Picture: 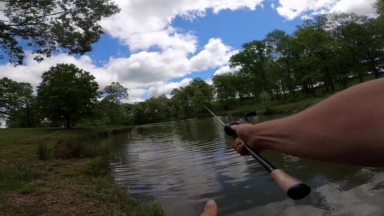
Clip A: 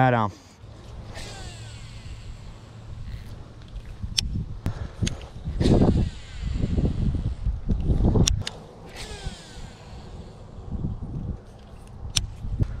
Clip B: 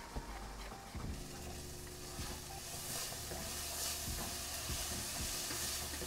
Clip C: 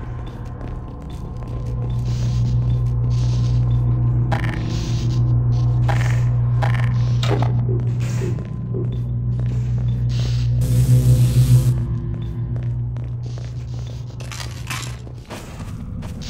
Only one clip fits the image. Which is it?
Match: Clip A